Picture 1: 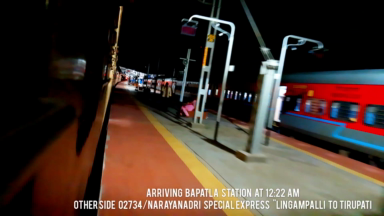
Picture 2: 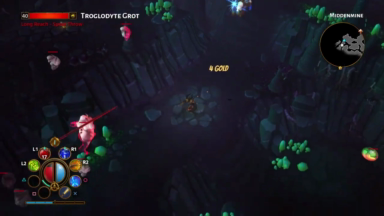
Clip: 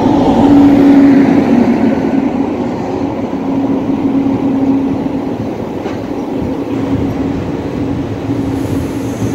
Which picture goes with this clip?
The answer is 1